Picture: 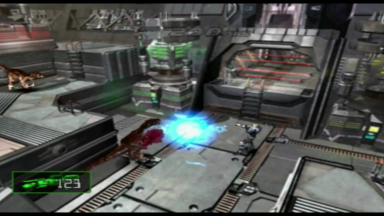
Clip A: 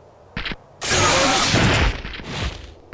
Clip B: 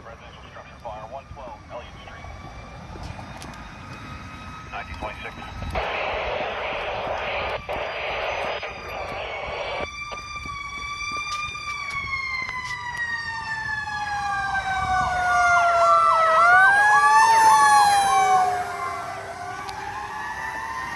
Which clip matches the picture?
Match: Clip A